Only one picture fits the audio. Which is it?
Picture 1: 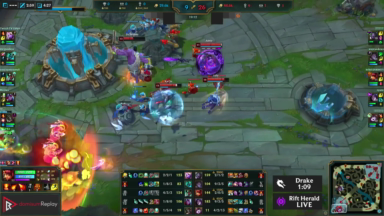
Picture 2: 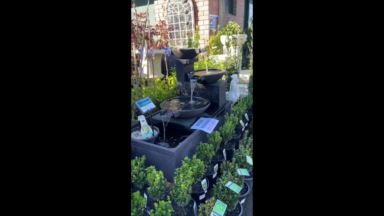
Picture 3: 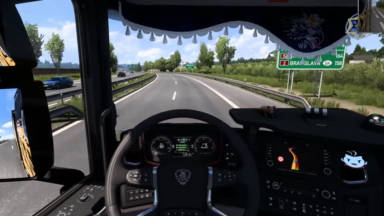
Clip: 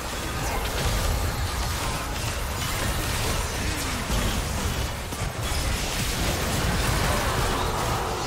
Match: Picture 1